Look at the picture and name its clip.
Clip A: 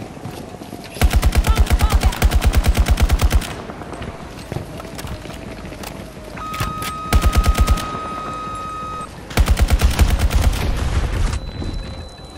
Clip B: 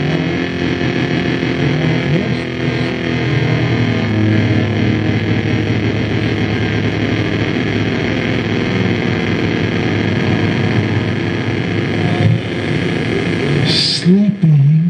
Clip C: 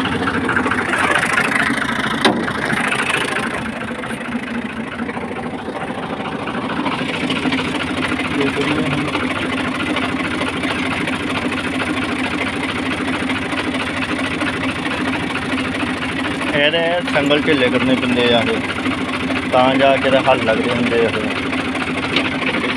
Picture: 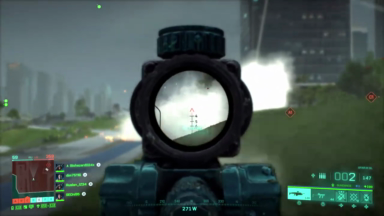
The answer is A